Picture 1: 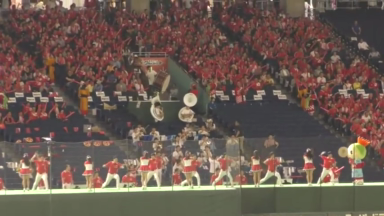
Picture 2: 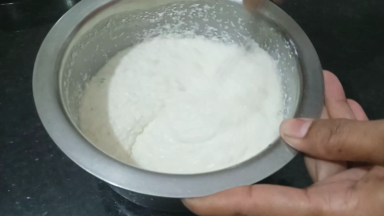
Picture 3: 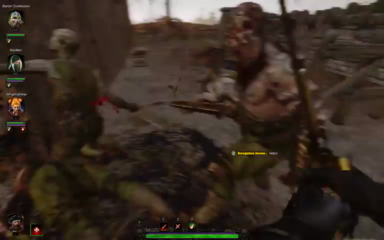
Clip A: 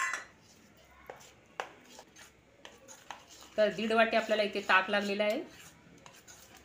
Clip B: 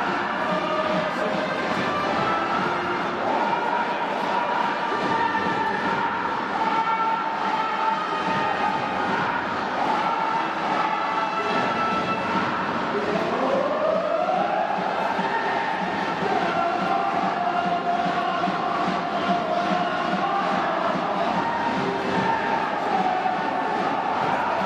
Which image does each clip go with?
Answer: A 2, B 1